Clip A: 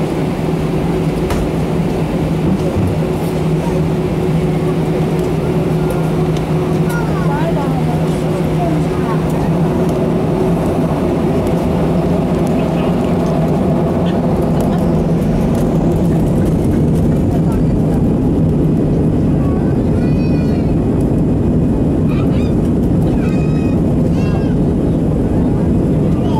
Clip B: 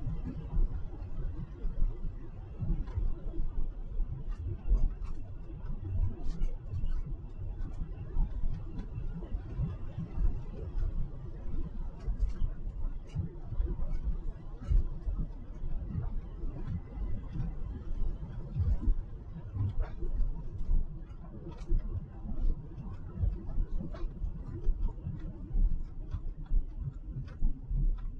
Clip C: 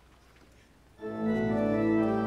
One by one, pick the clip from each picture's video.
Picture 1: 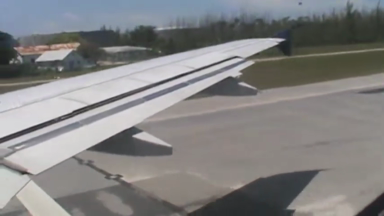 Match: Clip A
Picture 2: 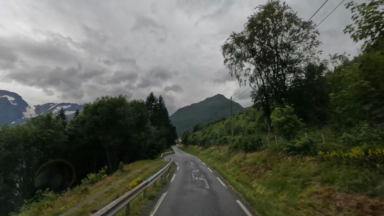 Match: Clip B